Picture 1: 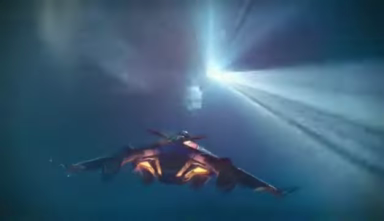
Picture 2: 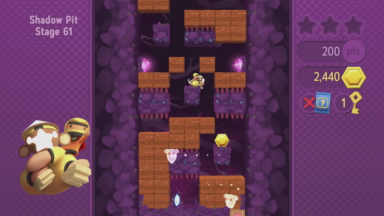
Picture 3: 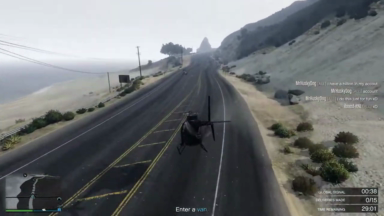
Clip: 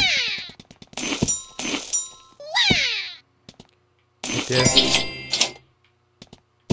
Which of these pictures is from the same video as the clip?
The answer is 2